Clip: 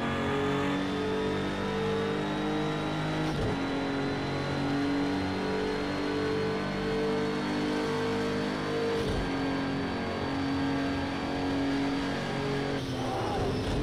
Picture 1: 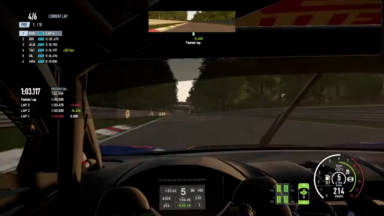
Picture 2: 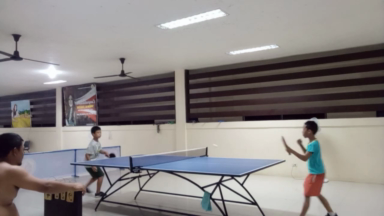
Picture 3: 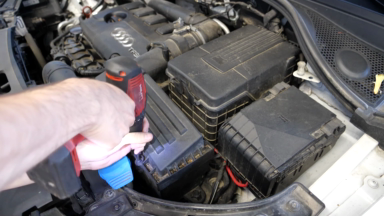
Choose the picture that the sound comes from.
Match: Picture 1